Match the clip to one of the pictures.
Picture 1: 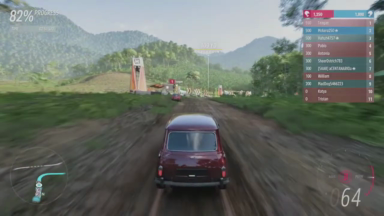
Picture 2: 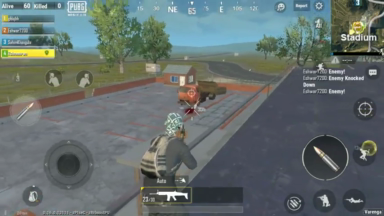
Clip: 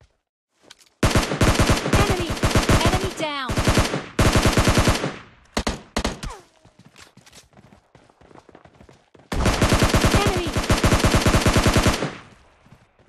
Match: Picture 2